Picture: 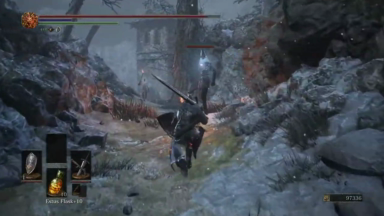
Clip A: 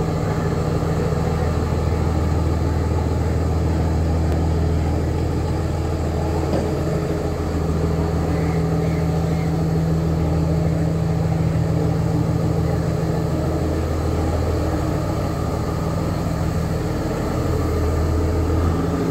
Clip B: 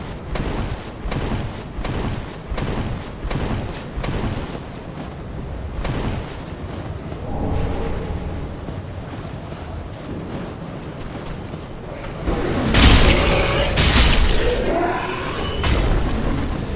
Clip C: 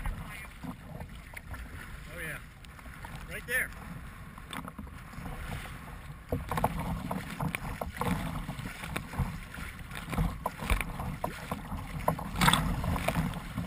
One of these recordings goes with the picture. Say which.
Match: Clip B